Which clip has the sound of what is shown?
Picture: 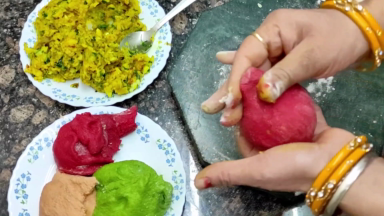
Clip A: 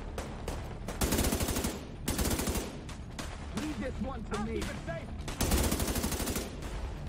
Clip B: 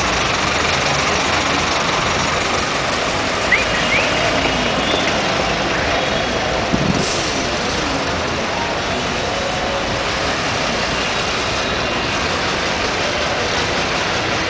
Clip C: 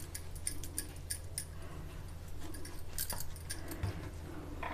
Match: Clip C